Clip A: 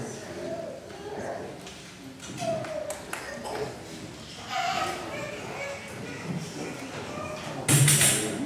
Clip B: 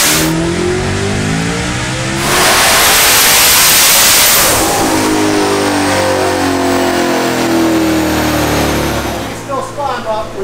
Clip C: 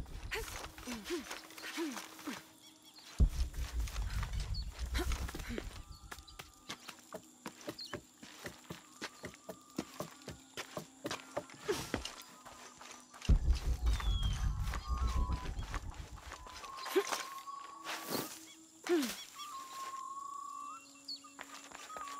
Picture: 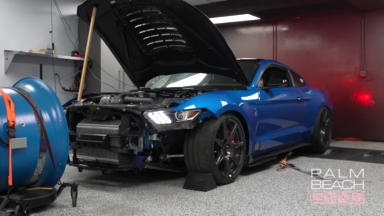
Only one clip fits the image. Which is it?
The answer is B